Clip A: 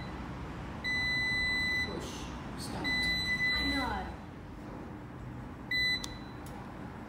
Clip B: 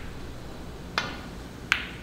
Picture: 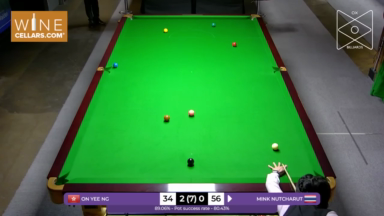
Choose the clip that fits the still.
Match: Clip B